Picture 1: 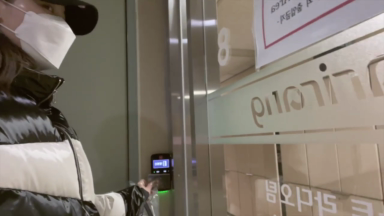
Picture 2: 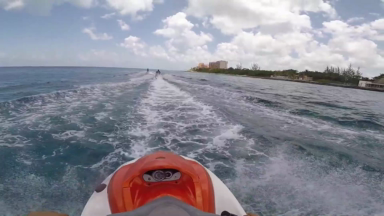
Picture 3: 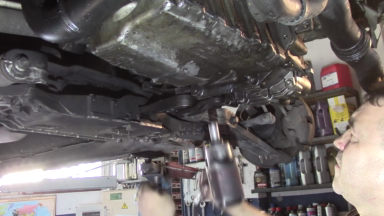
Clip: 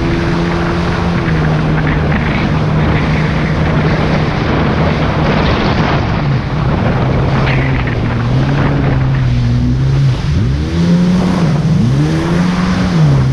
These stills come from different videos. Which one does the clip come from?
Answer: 2